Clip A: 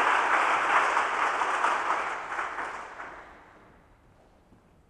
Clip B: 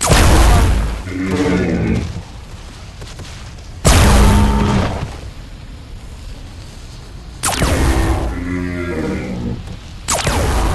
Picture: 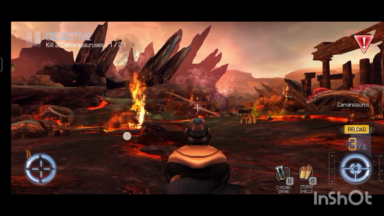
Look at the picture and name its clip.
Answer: B